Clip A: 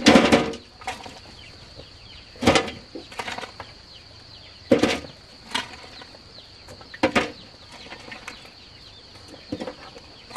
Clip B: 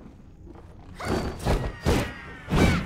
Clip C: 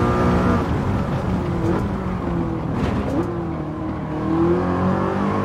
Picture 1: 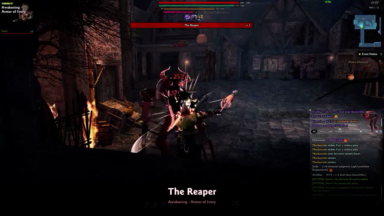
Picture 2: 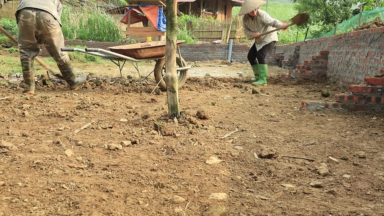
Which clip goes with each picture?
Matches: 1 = B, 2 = A